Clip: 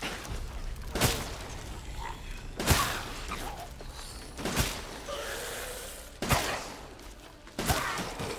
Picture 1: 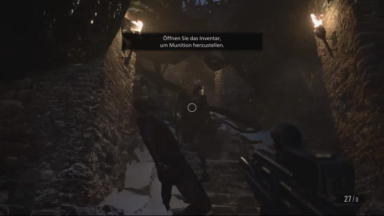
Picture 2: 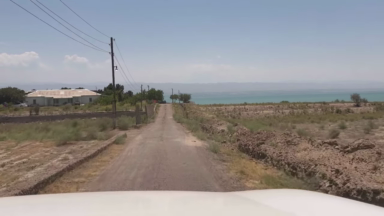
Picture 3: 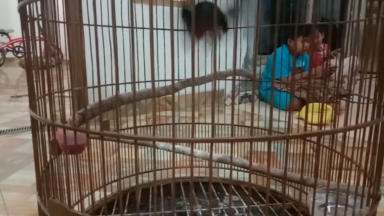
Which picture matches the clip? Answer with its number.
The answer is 1